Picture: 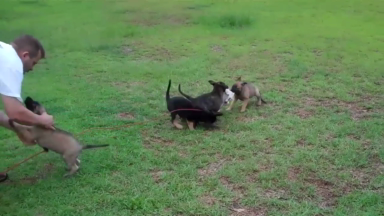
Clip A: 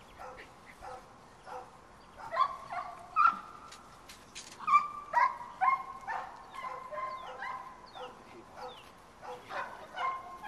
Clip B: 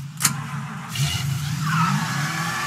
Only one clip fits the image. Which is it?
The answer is A